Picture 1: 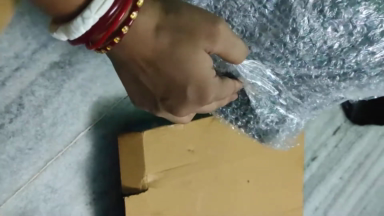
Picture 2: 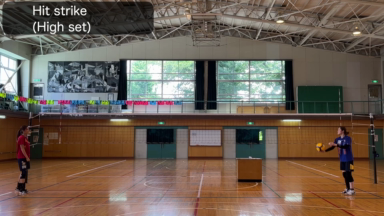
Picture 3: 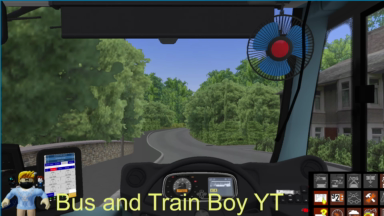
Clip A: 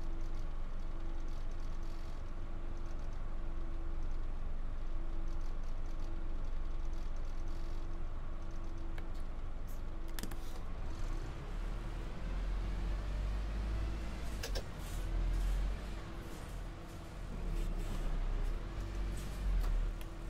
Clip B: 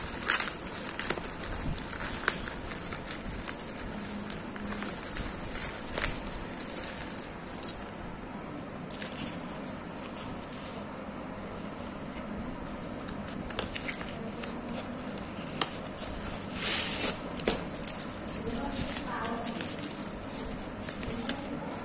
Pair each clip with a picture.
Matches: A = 3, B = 1